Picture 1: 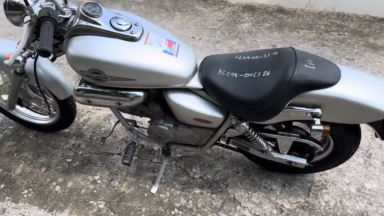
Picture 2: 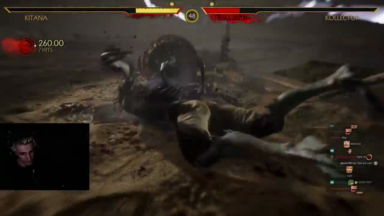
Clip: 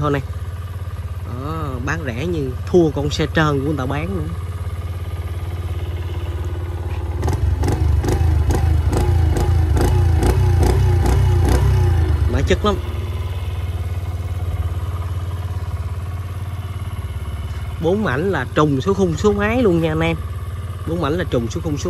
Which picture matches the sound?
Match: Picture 1